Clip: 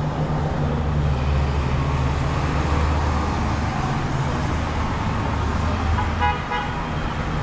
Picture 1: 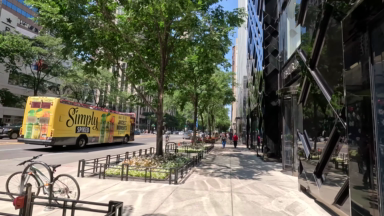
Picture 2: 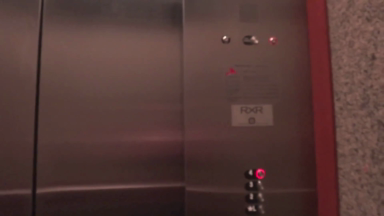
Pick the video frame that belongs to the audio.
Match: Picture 1